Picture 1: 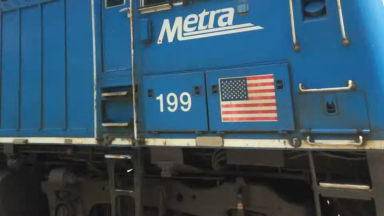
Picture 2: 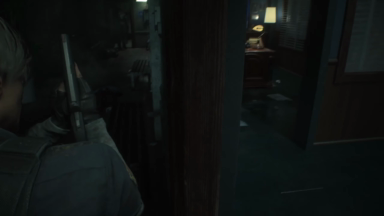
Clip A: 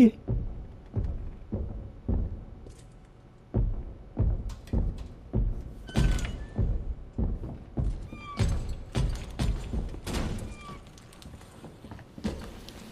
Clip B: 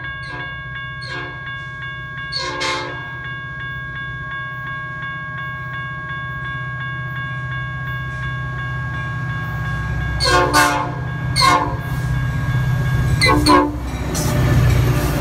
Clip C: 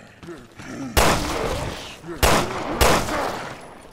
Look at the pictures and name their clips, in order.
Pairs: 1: B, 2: A